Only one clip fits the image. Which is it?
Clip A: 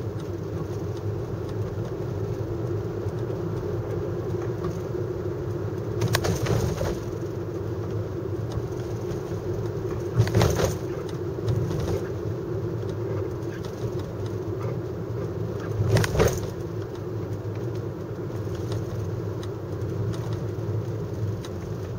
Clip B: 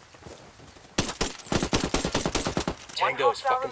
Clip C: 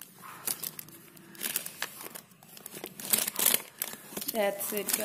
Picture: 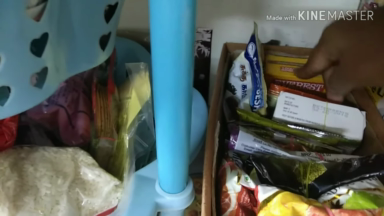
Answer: C